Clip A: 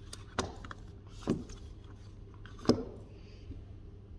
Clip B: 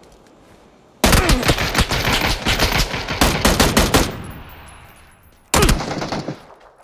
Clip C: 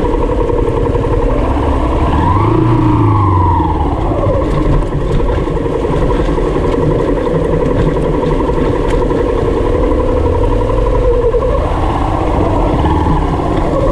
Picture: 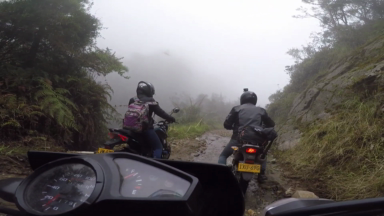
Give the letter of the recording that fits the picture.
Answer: C